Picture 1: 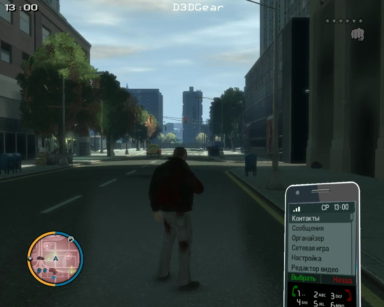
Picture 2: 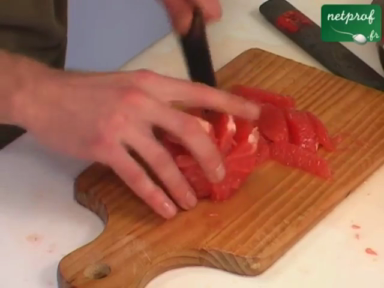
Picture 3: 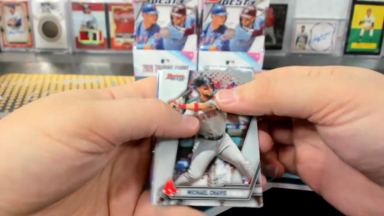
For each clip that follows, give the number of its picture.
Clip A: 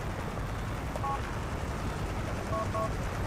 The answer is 1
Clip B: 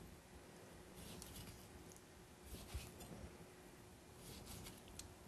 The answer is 2